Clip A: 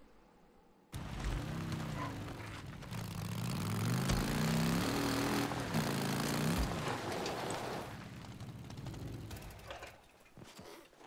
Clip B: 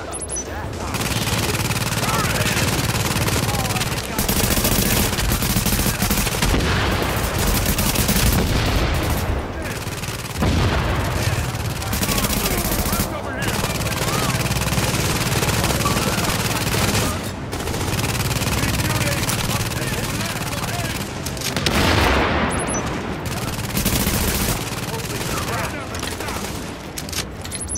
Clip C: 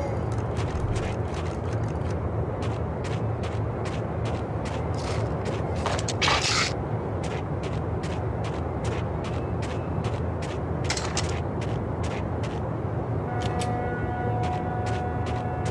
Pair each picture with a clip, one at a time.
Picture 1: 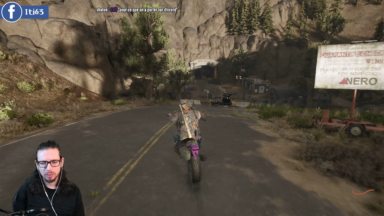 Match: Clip A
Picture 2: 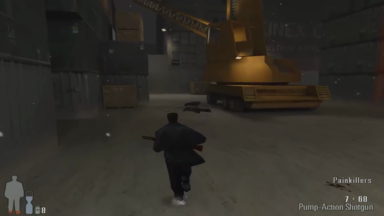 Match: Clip C